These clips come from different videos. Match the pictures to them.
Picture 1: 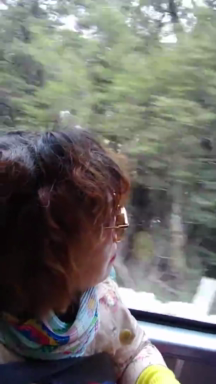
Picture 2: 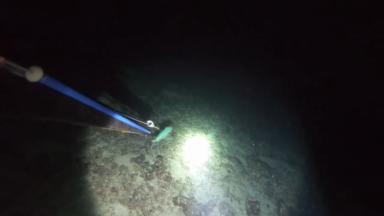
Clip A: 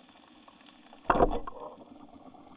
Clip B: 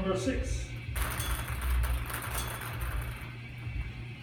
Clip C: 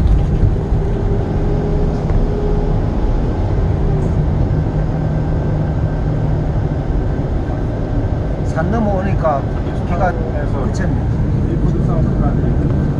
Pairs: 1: C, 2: A